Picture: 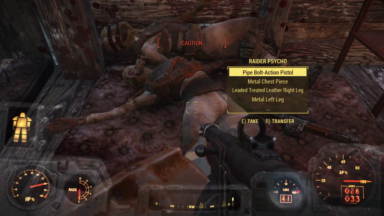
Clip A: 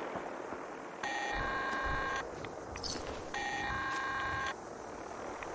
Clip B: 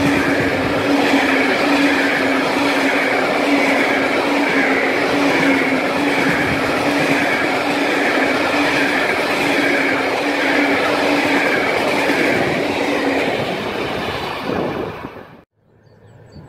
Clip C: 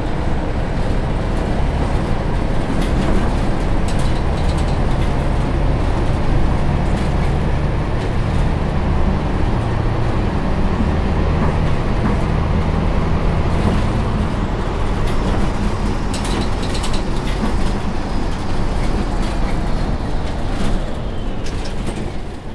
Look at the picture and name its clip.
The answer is A